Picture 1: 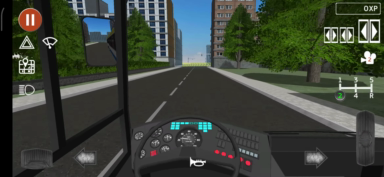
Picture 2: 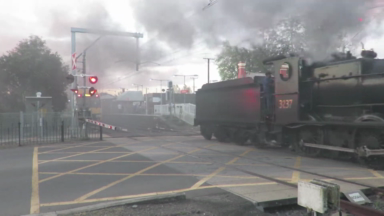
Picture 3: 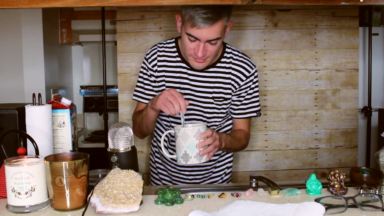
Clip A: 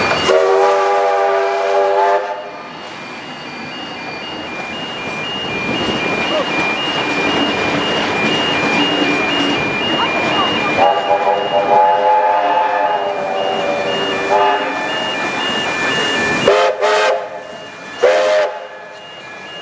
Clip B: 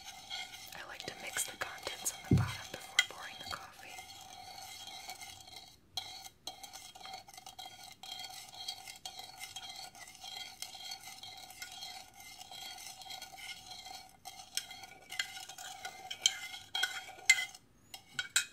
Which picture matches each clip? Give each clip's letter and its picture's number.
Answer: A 2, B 3